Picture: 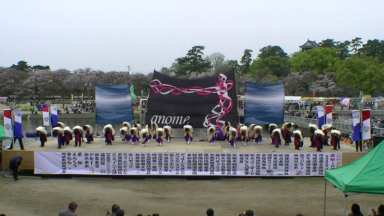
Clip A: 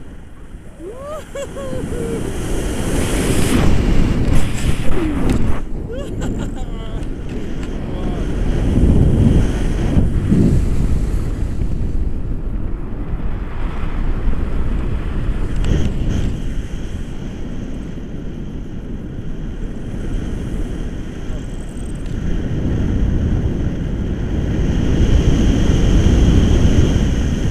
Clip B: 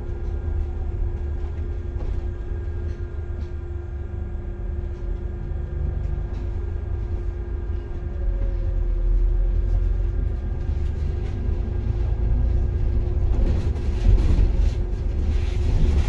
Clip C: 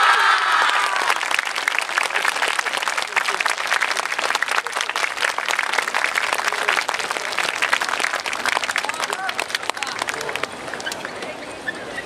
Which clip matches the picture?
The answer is C